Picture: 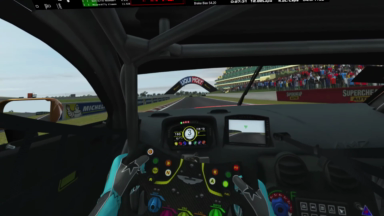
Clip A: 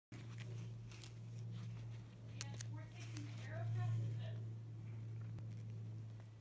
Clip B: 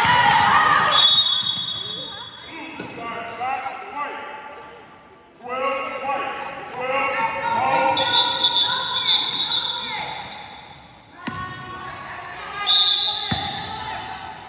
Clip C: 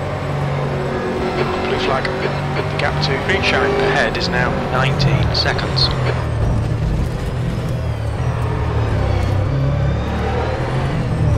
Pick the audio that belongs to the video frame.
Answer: C